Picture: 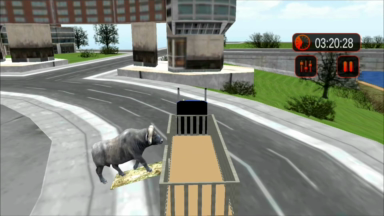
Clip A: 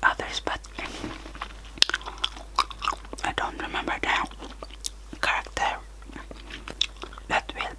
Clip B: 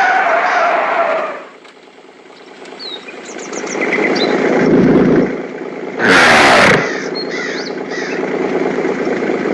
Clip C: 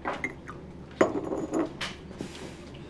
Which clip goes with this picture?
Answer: B